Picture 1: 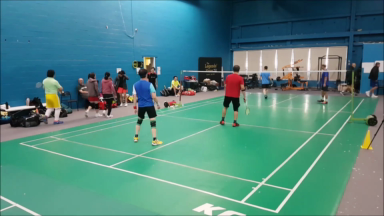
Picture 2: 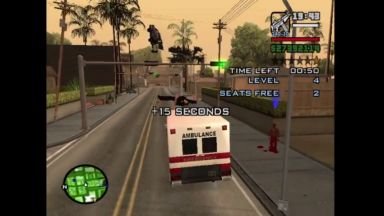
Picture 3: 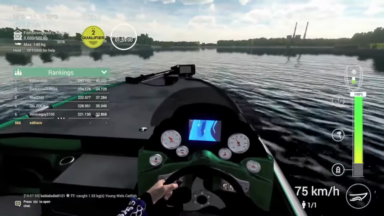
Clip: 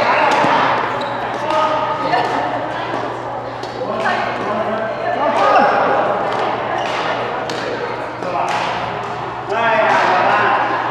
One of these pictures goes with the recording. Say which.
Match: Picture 1